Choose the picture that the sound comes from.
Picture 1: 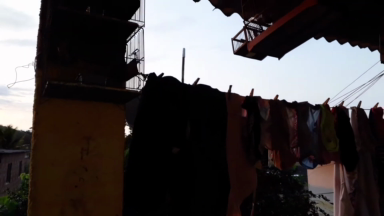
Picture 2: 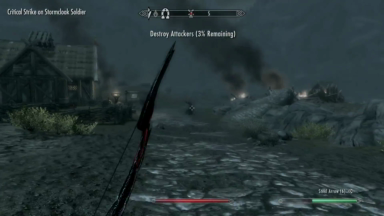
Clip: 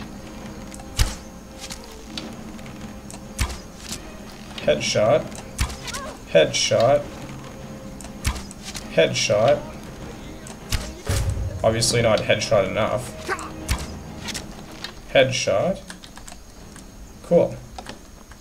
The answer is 2